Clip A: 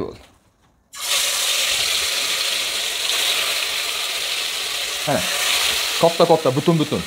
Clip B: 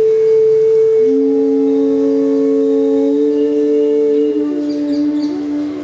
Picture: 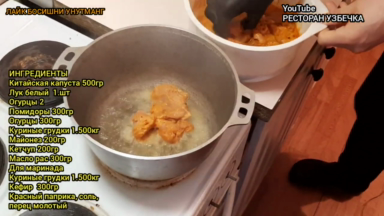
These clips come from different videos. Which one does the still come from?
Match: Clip A